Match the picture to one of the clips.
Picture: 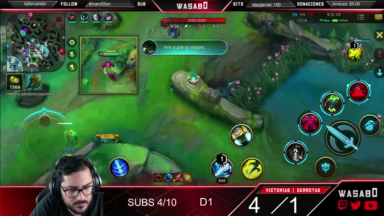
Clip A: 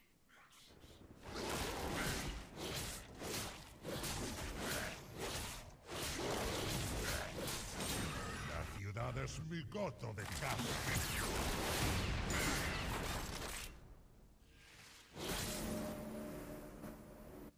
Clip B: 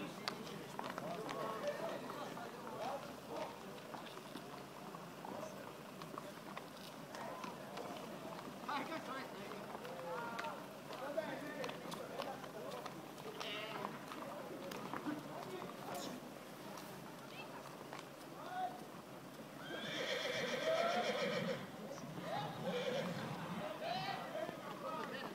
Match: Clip A